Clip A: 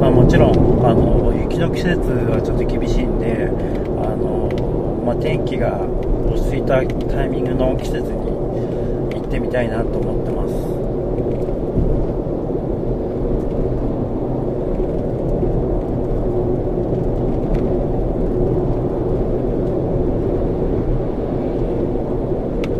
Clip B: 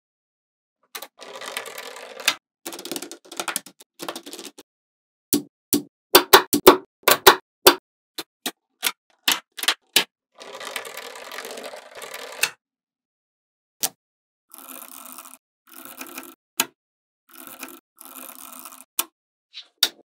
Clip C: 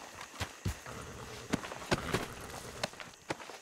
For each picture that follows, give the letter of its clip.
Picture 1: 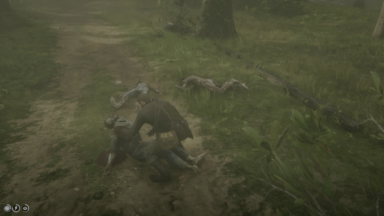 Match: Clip C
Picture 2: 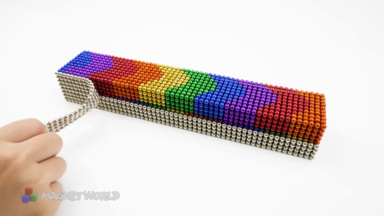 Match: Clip B